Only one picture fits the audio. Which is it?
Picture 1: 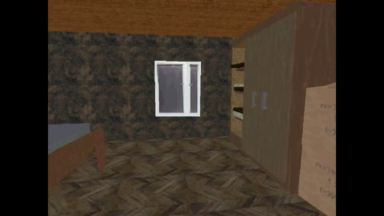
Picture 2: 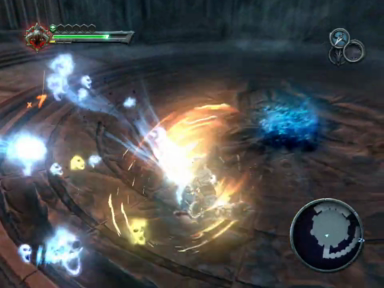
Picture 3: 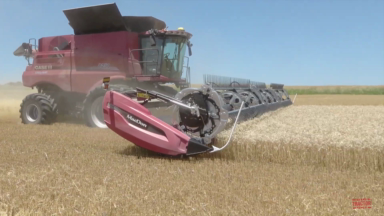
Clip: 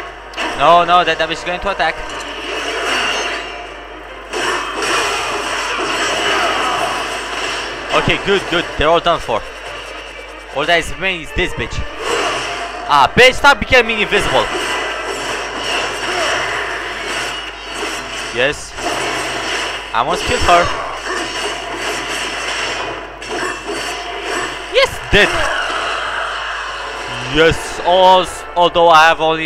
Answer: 2